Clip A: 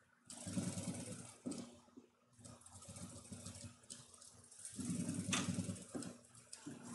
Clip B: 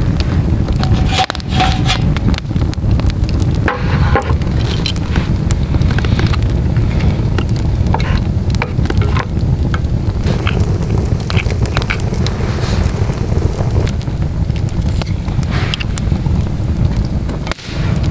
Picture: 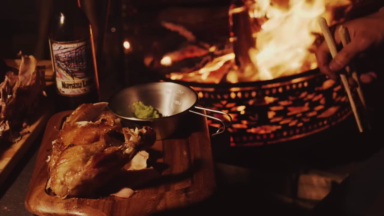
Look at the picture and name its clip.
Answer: B